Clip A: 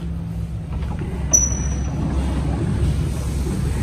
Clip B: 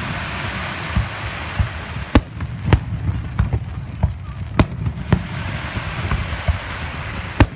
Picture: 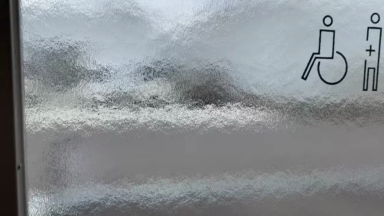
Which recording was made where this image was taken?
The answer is A